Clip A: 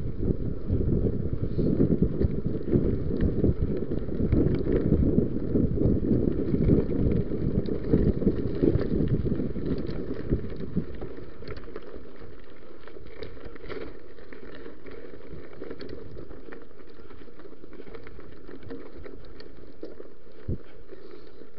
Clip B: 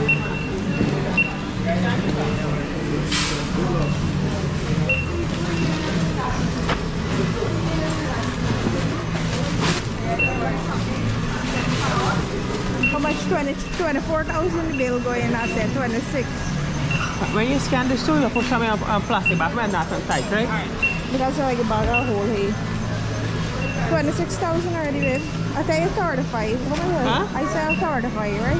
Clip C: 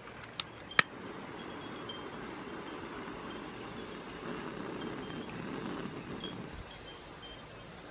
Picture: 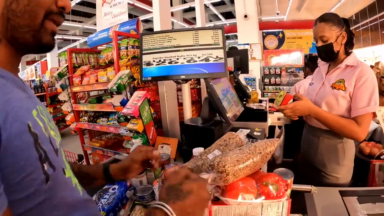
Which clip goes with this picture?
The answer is B